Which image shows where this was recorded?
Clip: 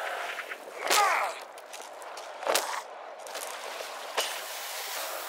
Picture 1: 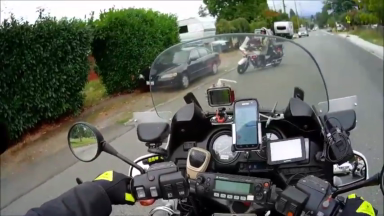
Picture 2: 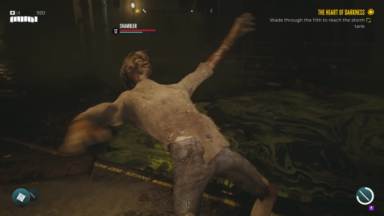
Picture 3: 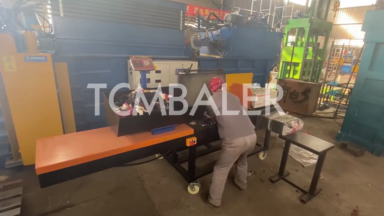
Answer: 2